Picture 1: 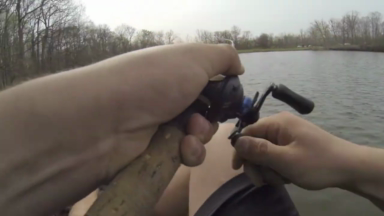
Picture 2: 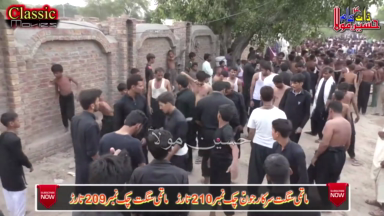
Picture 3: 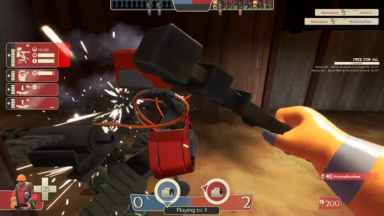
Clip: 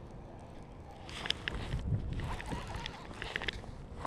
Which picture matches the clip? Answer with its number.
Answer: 1